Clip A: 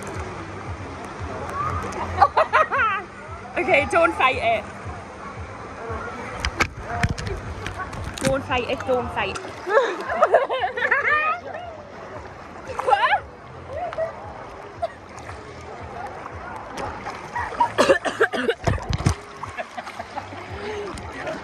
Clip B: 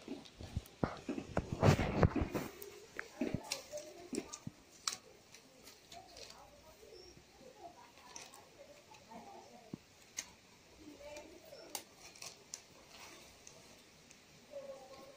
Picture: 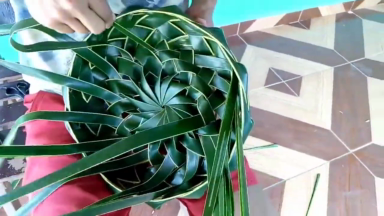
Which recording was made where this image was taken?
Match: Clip B